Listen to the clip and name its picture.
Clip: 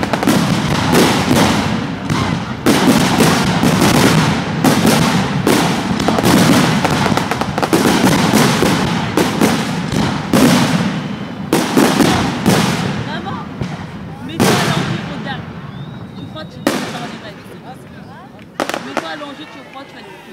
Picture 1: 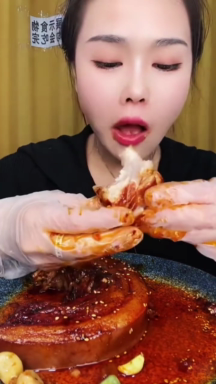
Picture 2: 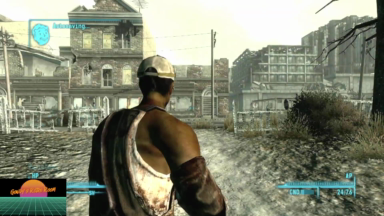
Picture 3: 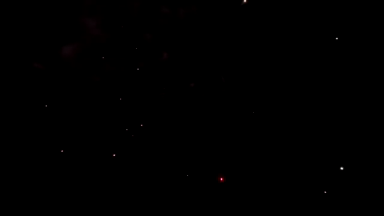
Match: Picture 3